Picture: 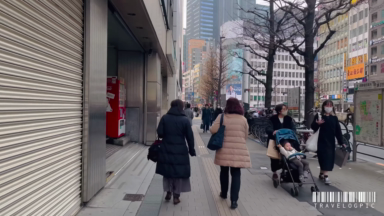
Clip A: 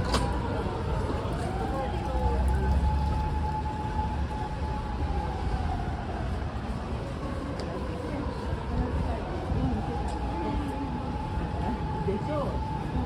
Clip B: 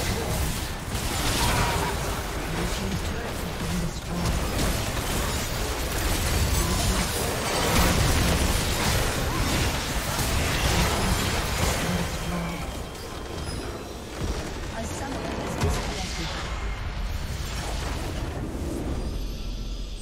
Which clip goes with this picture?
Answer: A